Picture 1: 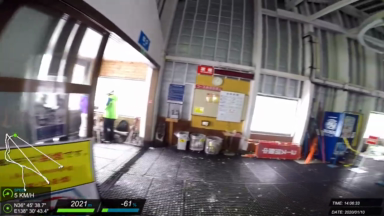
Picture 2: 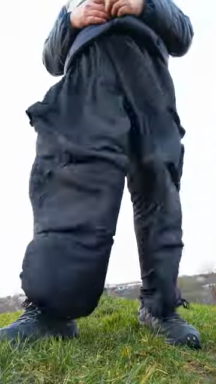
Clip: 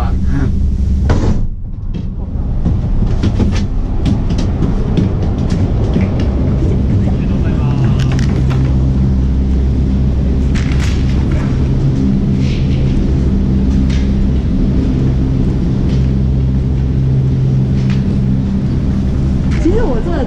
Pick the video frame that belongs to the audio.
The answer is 1